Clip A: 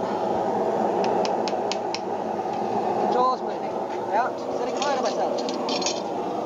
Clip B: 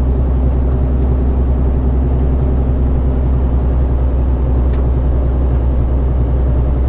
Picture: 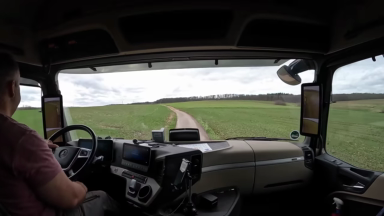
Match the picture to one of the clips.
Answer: B